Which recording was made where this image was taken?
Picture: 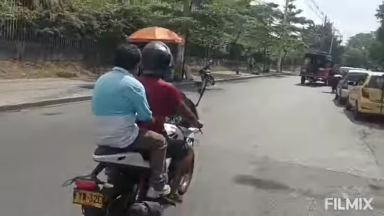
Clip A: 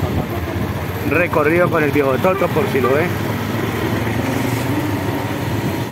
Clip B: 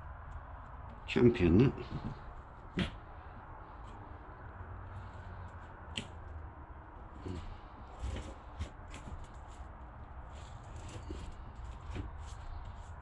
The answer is A